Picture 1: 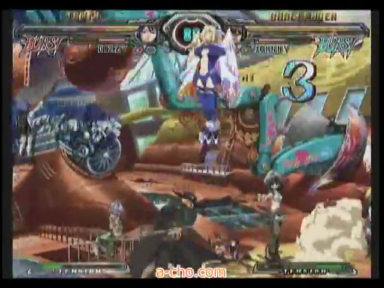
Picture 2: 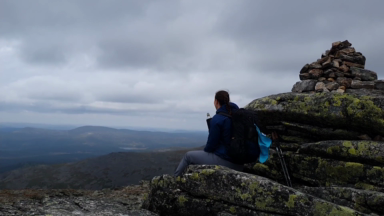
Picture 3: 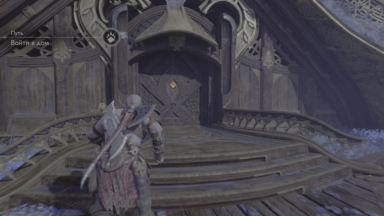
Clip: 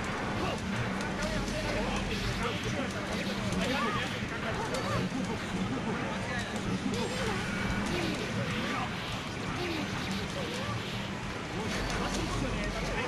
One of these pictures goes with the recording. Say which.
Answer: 1